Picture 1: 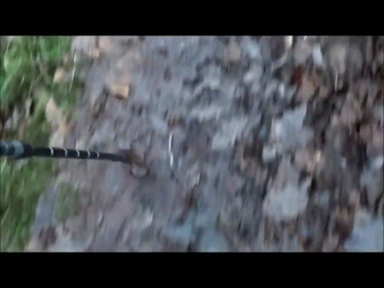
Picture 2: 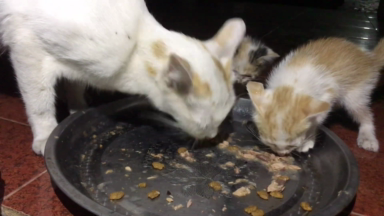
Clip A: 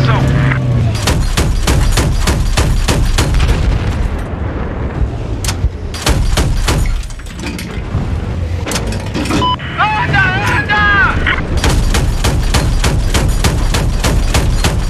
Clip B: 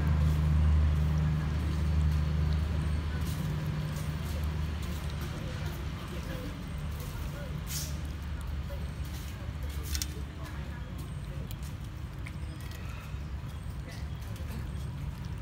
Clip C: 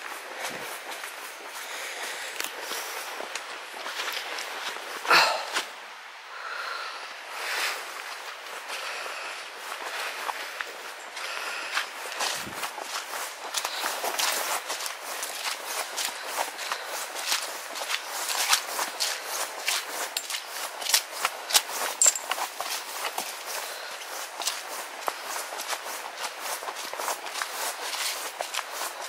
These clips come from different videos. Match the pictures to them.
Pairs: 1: C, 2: B